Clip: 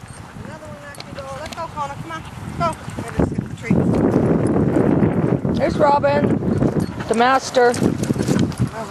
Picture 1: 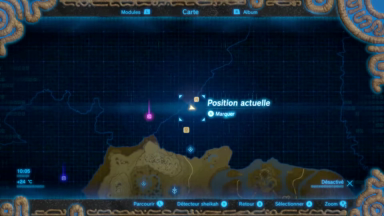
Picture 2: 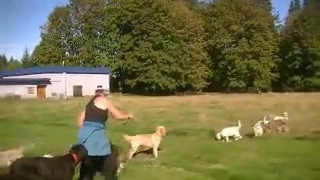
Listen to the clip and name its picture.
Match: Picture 2